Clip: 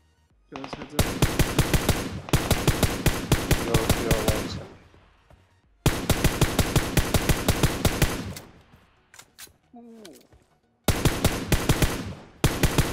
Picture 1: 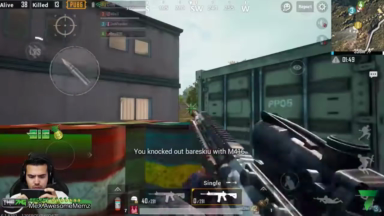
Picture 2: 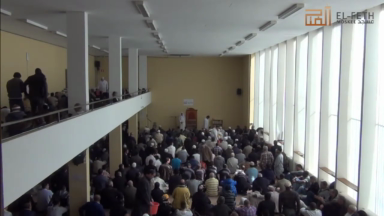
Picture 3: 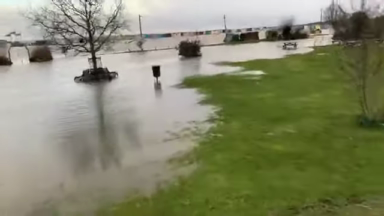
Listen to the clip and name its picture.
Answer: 1